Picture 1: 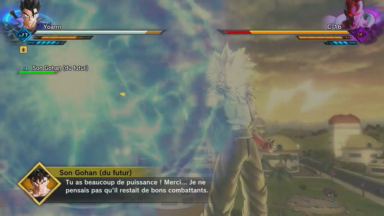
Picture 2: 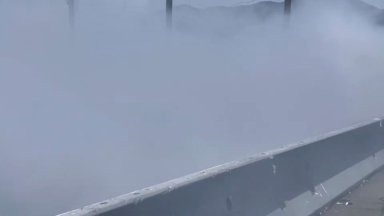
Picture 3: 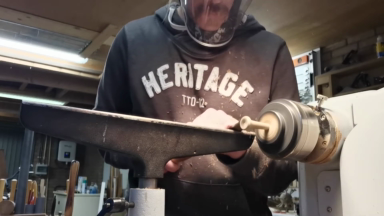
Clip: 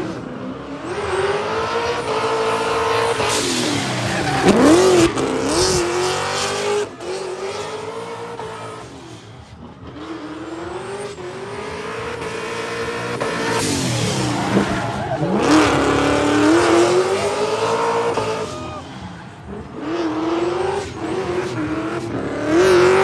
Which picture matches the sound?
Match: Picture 2